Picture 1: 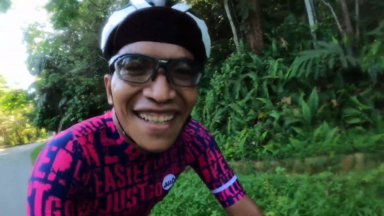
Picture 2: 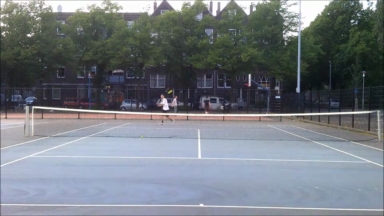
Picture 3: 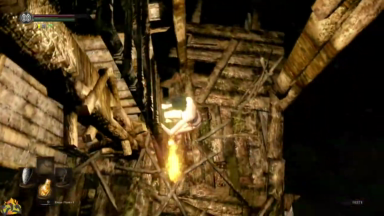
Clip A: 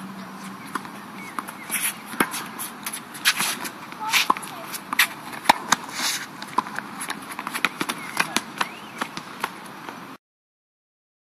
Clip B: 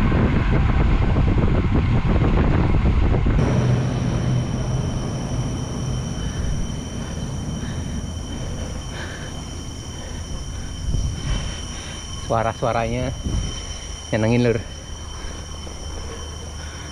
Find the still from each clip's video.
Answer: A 2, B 1